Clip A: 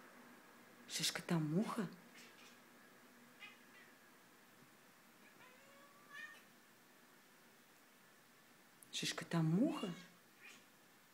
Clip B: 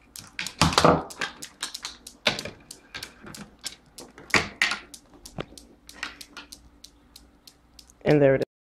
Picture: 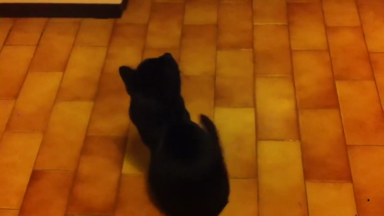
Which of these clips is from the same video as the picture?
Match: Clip A